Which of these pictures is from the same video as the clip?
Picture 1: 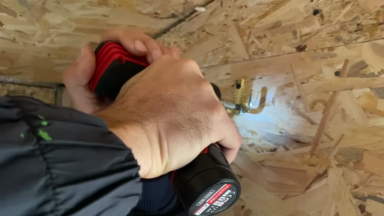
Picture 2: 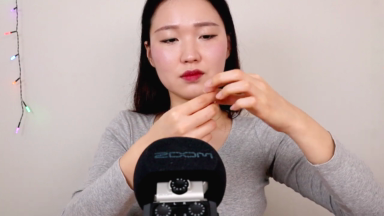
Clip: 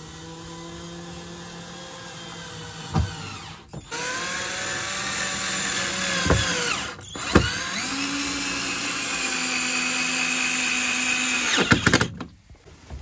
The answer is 1